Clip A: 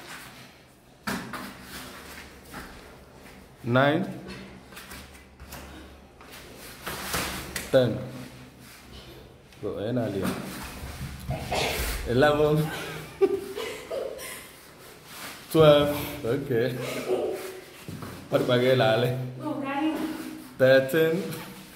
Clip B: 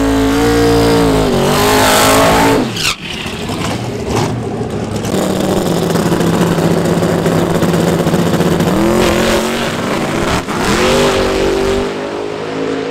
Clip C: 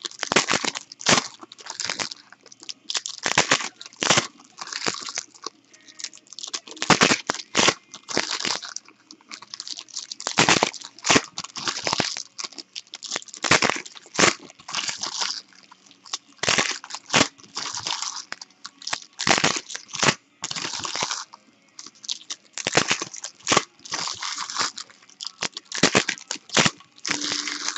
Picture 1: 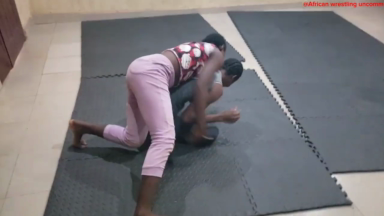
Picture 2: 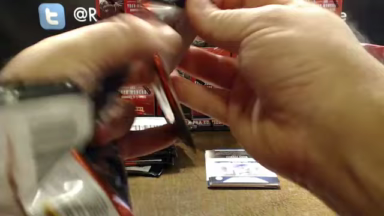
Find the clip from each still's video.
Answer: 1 A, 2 C